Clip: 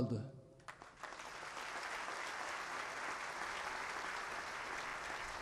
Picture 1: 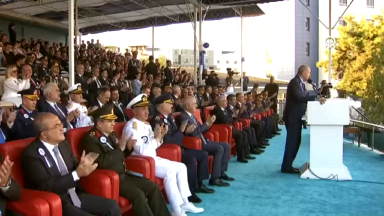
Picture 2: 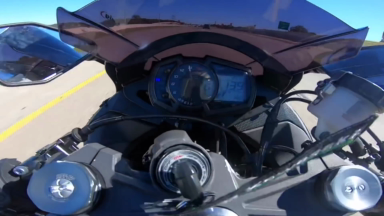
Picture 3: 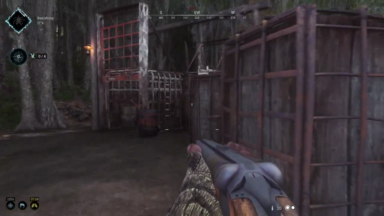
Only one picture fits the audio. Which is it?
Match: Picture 1